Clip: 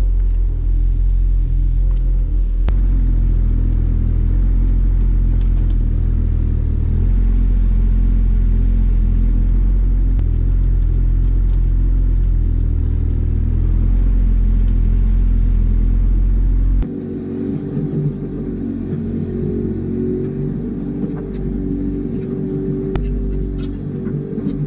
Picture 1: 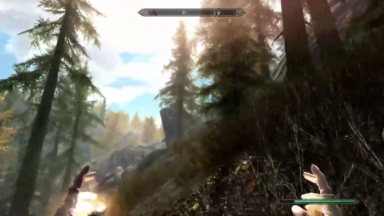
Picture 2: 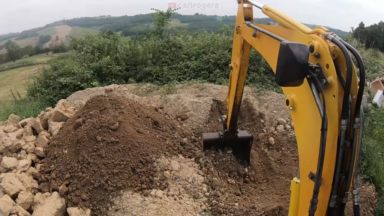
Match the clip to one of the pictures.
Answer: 2